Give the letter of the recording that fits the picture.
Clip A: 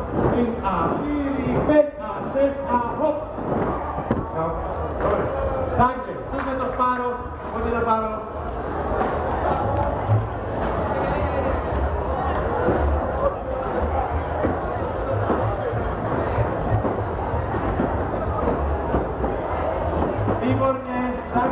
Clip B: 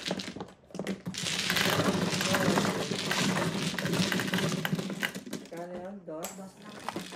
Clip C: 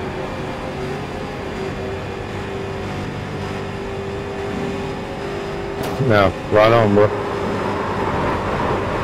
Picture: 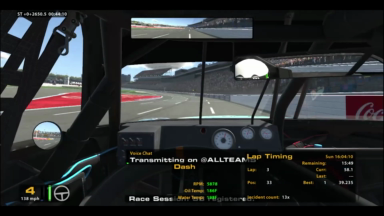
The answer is C